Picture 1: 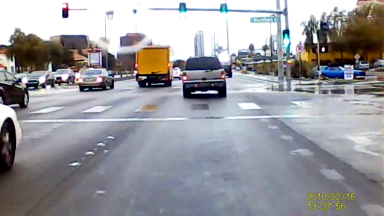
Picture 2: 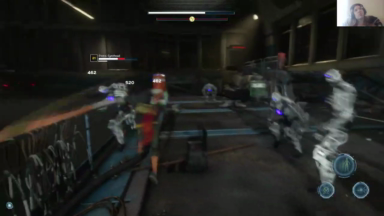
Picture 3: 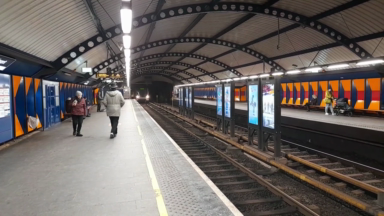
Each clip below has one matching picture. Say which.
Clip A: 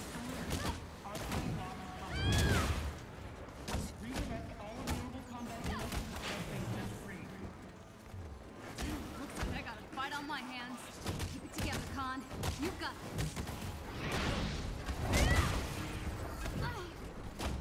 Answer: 2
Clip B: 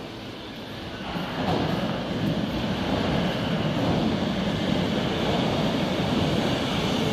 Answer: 3